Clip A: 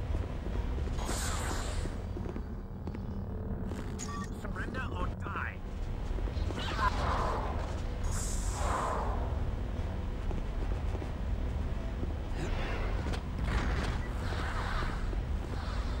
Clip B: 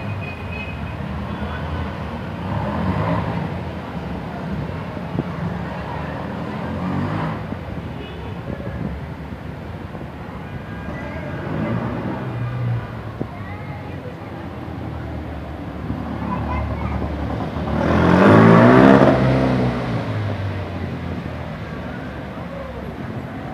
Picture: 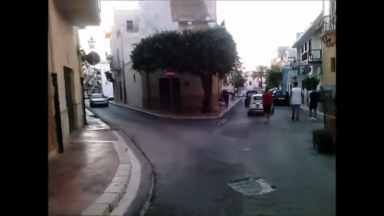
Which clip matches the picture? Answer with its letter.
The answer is B